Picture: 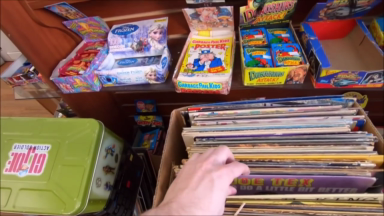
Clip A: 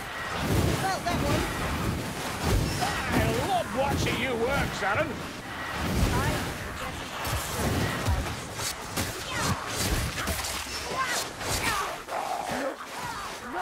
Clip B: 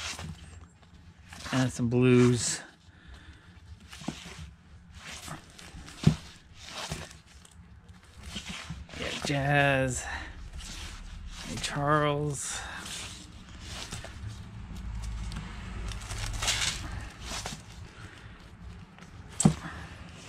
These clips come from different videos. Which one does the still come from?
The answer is B